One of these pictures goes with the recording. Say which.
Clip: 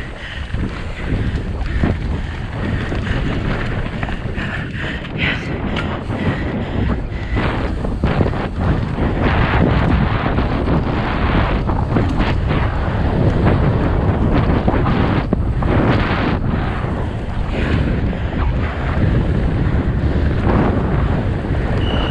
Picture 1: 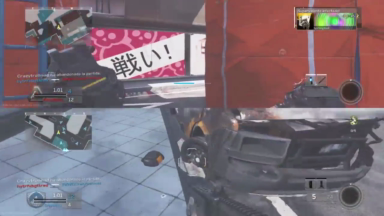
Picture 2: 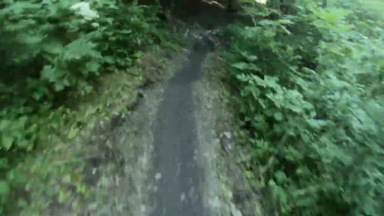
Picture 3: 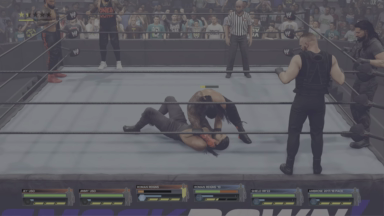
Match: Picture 2